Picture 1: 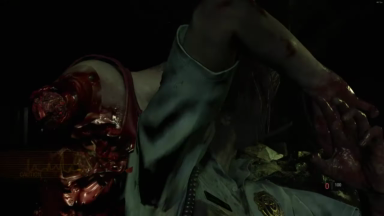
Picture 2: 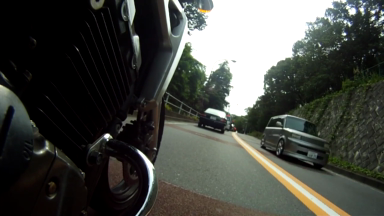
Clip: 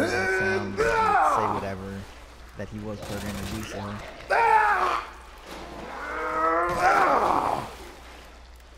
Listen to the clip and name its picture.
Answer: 1